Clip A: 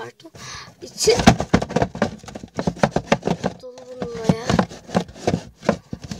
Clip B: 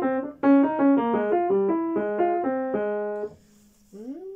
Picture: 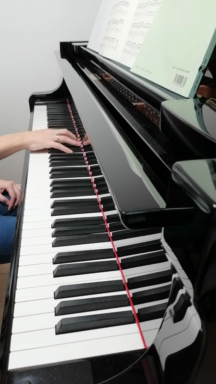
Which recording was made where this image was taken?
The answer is B